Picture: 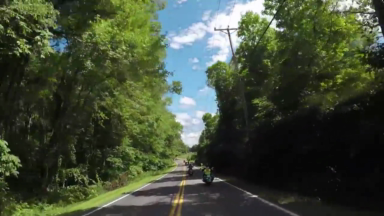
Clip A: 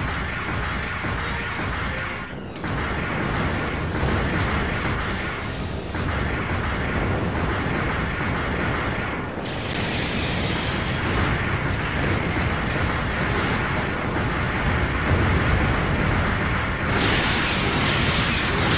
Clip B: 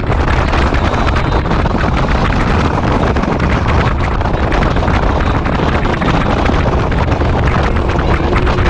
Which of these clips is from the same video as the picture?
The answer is B